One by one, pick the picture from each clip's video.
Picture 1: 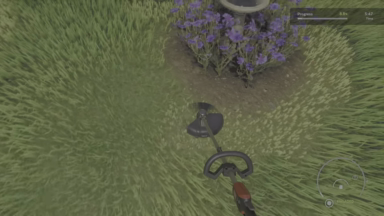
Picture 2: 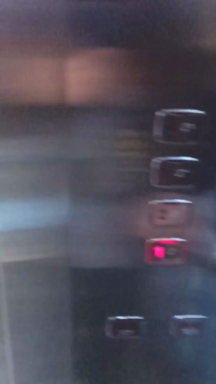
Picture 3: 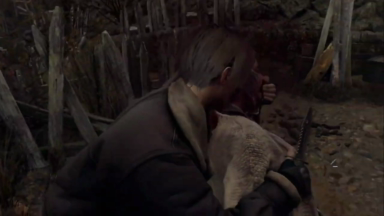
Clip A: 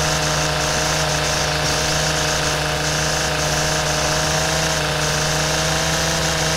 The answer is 1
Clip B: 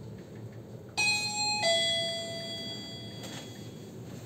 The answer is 2